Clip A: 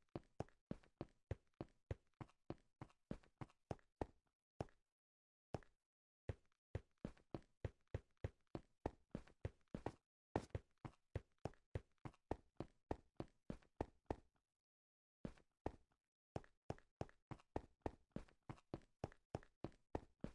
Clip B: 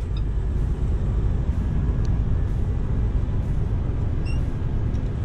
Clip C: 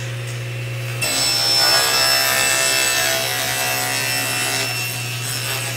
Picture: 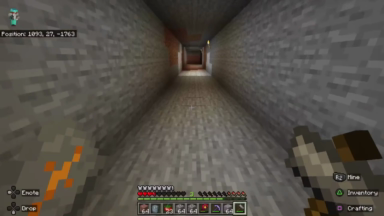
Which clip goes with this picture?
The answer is A